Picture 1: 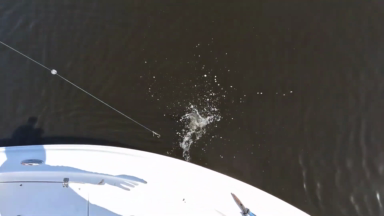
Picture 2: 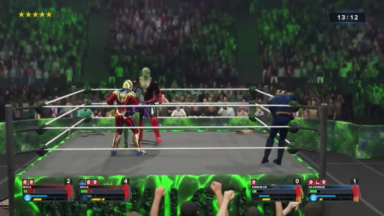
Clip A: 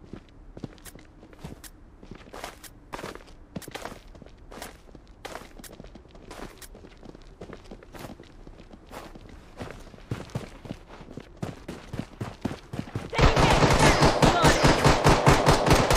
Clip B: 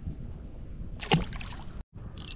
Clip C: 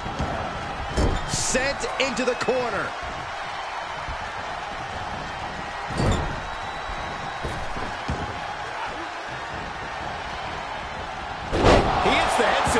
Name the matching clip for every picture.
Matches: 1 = B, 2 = C